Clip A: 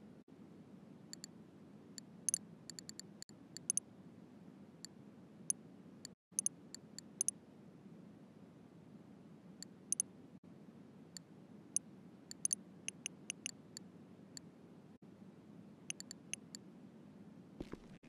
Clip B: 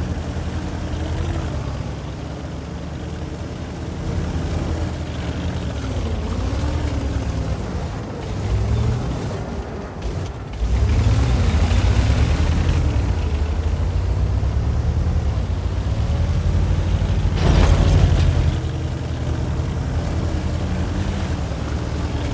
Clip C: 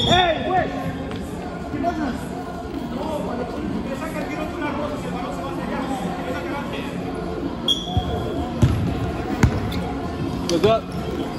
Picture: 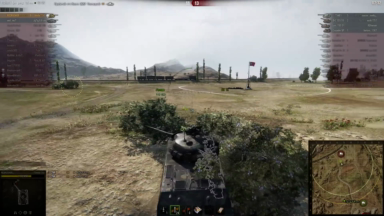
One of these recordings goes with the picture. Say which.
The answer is B